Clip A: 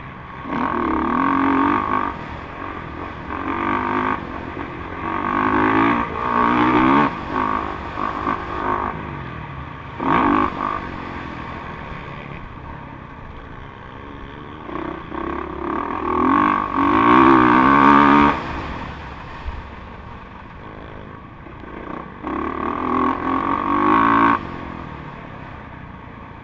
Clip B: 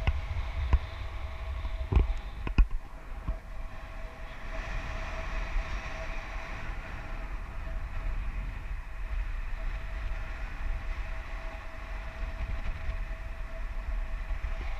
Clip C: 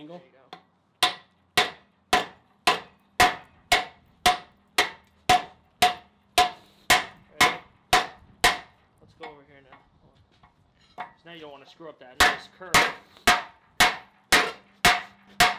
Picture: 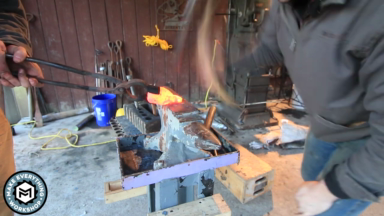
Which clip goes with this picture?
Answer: C